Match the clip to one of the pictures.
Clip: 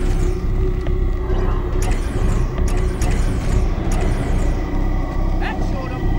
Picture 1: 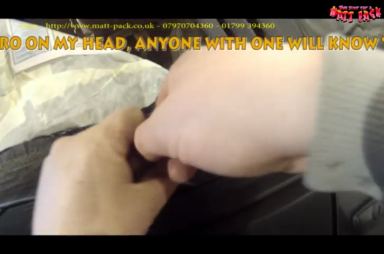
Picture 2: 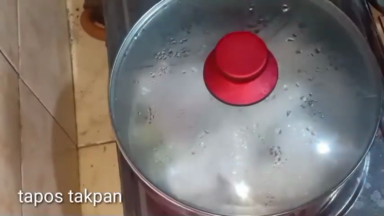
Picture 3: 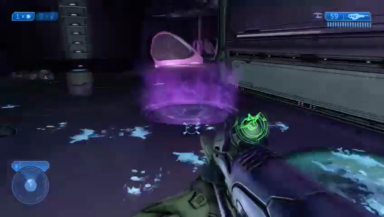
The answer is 3